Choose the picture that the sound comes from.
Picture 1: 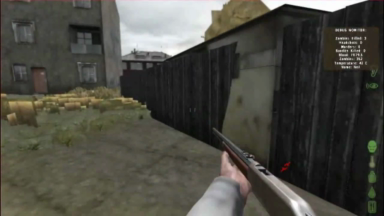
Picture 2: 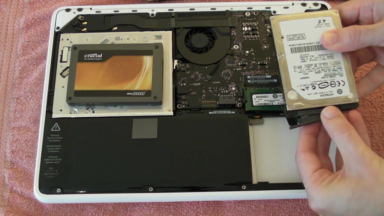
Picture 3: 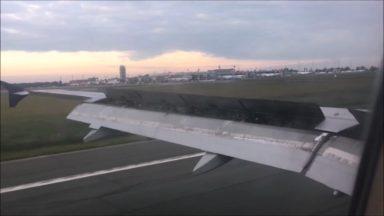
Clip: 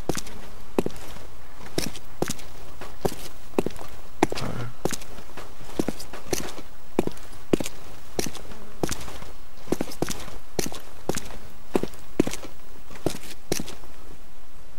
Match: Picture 1